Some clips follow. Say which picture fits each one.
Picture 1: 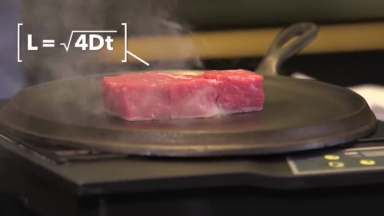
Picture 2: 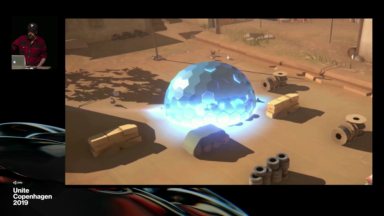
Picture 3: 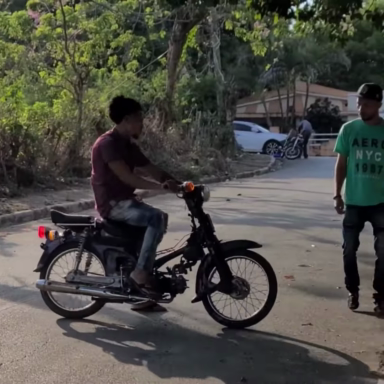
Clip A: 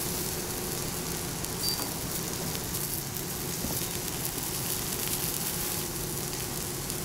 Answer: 1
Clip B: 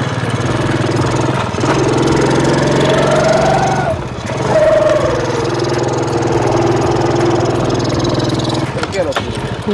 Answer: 3